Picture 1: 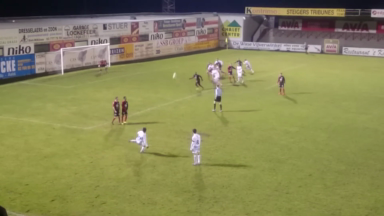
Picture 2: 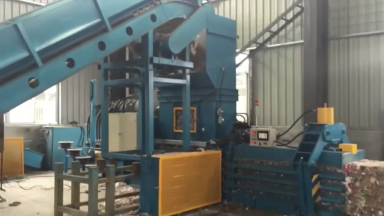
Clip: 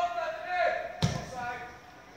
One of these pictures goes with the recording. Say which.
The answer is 1